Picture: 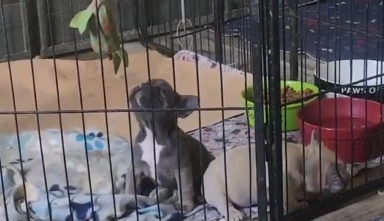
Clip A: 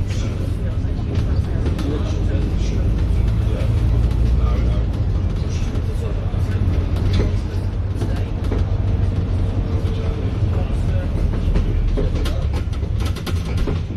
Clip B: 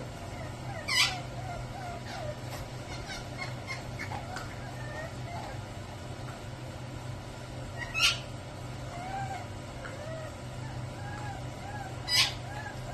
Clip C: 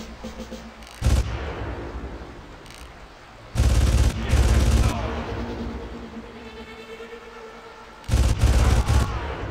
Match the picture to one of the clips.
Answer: B